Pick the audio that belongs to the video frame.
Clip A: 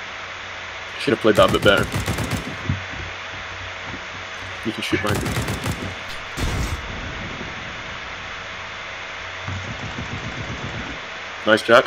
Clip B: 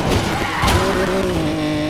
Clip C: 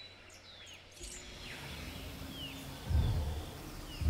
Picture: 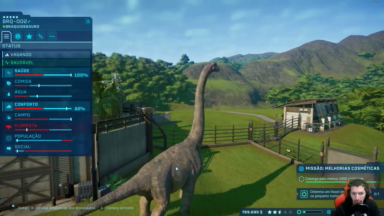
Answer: C